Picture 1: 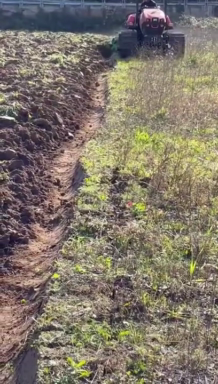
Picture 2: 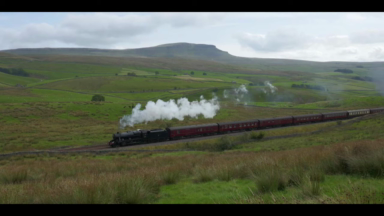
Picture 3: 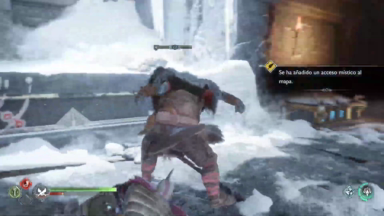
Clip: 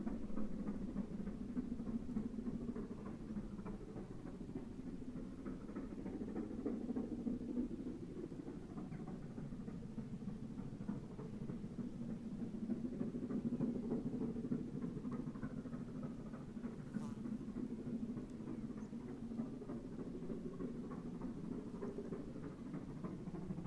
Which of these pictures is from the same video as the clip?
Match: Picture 2